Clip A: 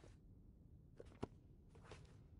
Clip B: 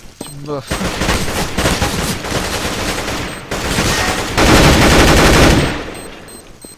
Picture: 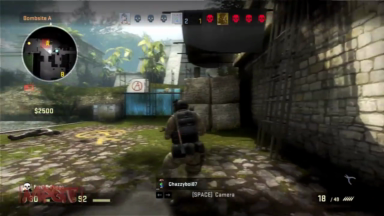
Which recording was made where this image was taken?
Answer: B